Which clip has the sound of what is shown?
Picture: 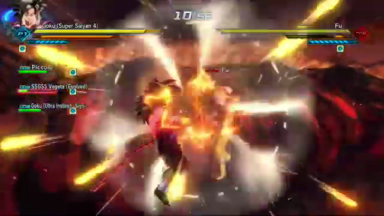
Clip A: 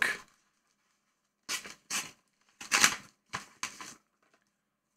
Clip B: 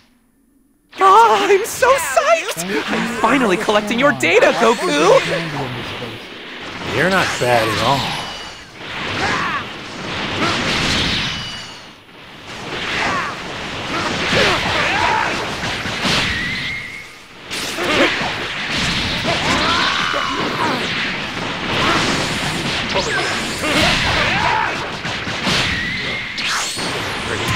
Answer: B